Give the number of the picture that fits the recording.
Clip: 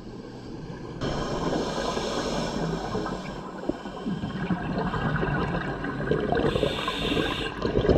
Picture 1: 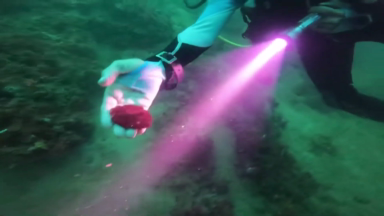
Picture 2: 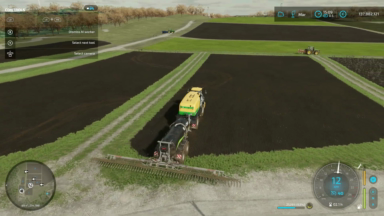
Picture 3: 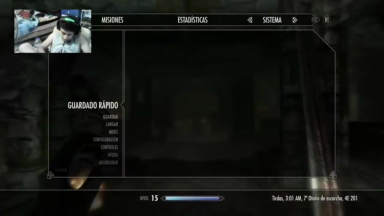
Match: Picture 1